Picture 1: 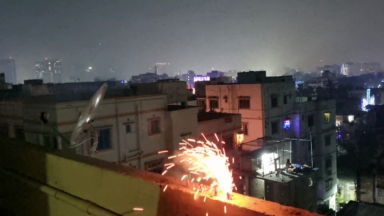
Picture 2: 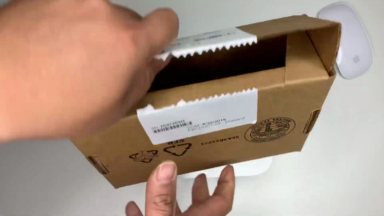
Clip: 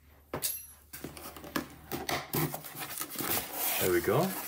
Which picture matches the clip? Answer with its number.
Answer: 2